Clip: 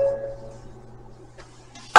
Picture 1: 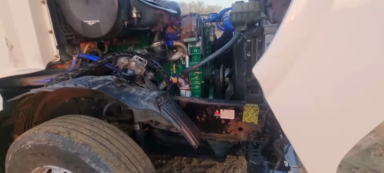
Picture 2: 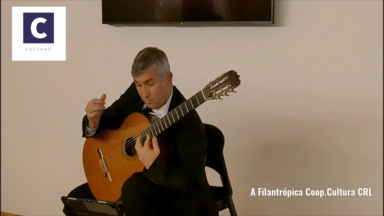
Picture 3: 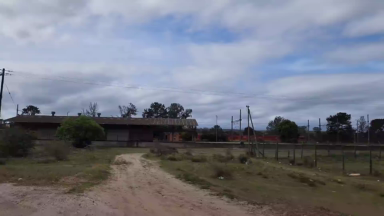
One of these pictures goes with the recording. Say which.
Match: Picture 2